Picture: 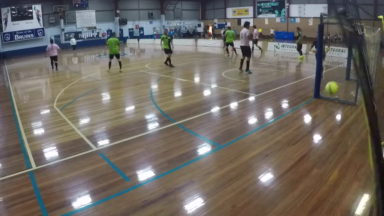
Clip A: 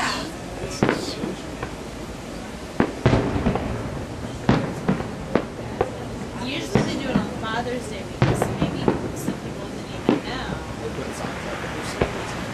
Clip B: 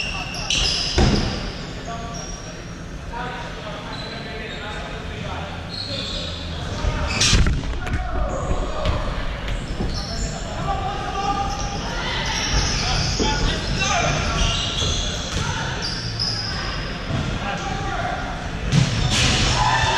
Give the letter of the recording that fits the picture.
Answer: B